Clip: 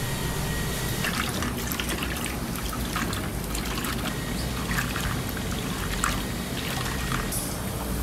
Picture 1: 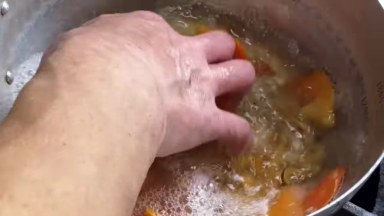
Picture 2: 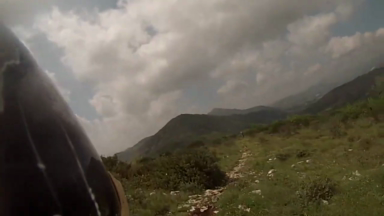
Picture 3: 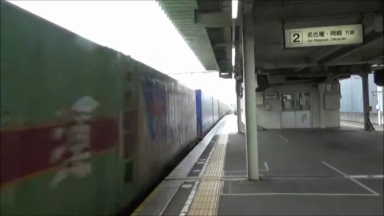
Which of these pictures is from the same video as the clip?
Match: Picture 1